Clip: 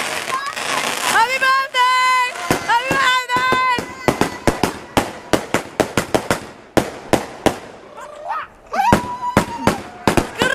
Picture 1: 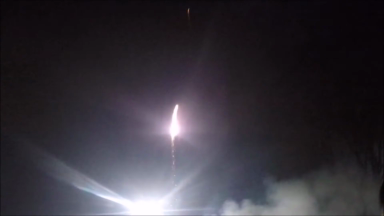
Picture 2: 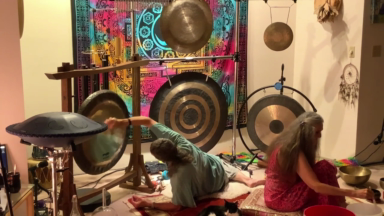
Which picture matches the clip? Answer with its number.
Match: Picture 1